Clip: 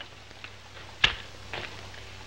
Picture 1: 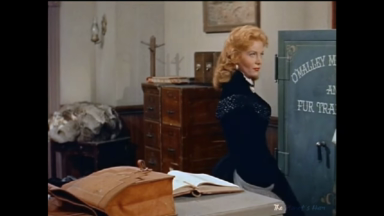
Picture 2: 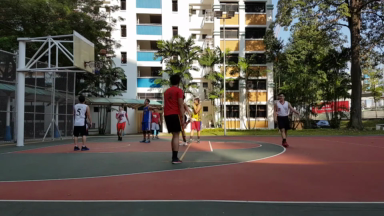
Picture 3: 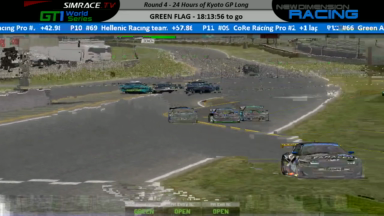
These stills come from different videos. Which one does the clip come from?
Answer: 1